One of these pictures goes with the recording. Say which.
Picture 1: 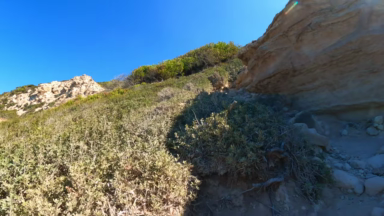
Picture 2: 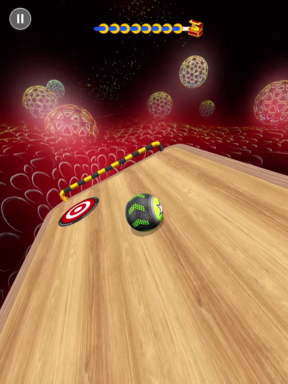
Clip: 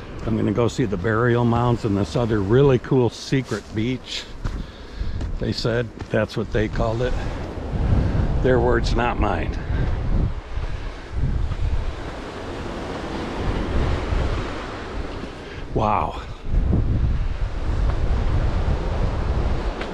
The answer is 1